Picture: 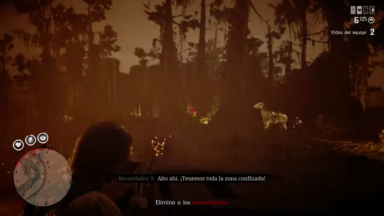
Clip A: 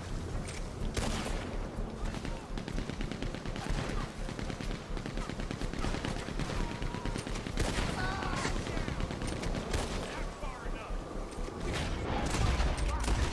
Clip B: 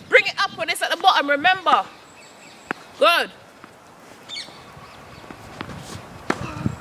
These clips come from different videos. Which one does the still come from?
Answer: A